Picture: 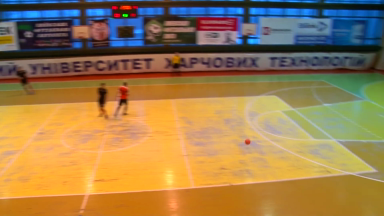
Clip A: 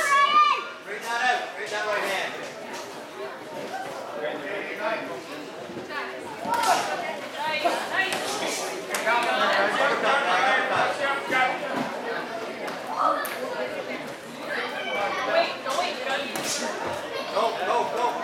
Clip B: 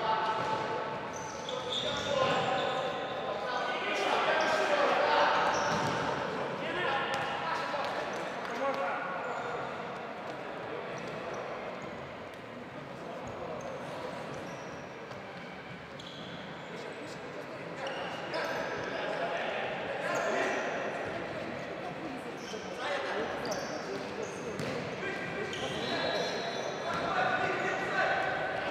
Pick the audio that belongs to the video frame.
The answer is B